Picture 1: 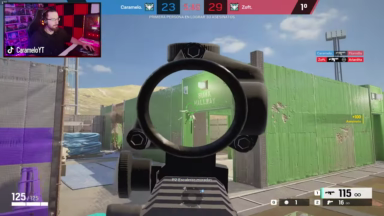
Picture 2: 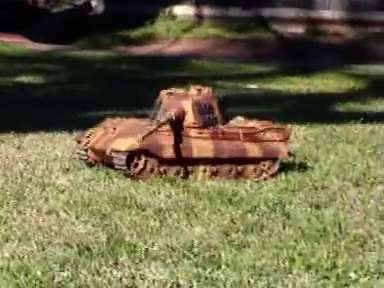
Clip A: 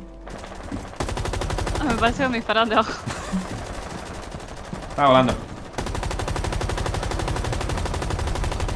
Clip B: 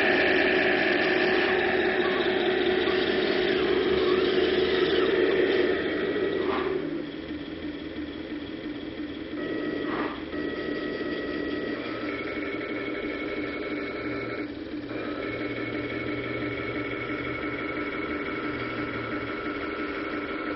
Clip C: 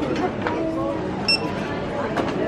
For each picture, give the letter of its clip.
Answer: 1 A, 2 B